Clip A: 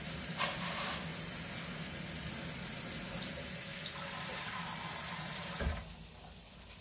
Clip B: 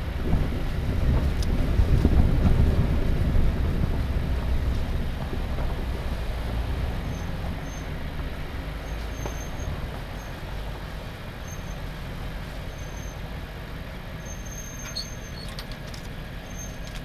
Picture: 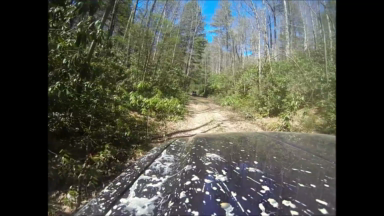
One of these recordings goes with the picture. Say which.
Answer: B